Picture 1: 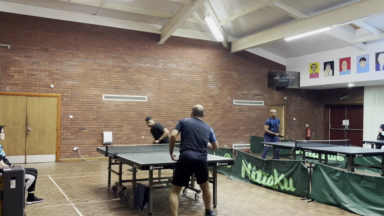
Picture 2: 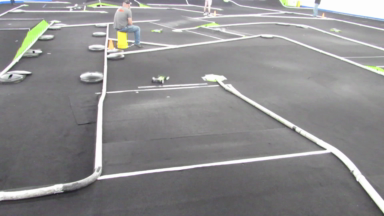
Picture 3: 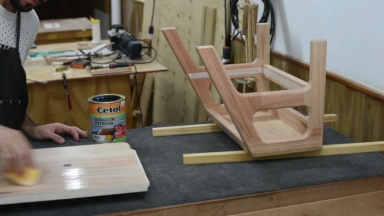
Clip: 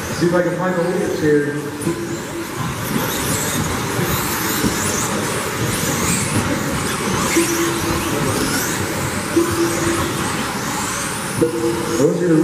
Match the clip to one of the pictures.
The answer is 2